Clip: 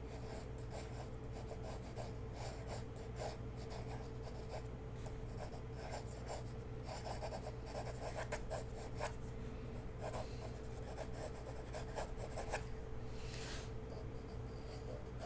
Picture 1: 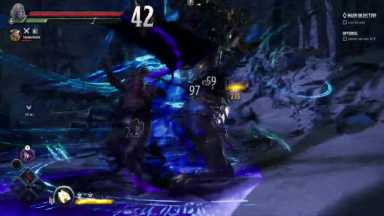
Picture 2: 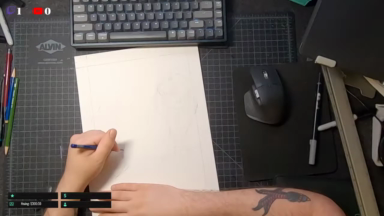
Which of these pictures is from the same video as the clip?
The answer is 2